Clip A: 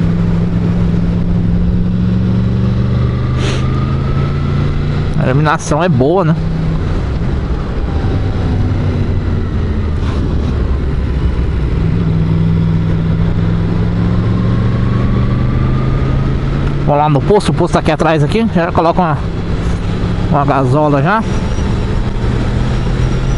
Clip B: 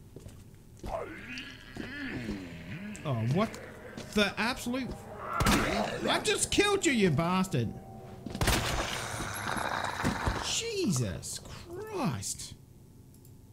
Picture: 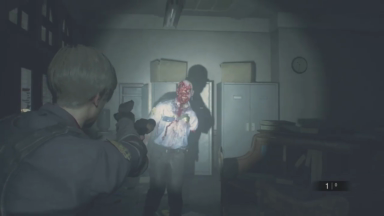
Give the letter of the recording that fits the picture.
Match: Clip B